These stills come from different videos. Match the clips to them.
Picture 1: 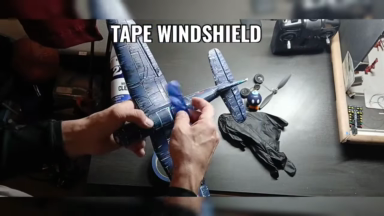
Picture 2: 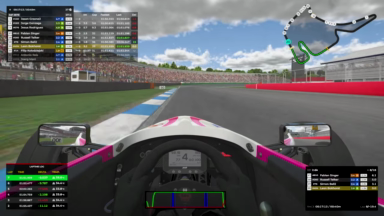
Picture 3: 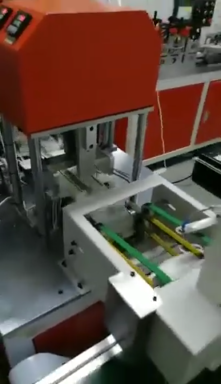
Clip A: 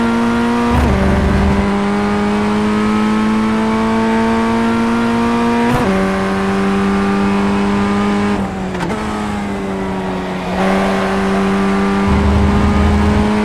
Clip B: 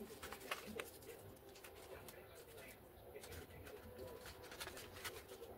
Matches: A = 2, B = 1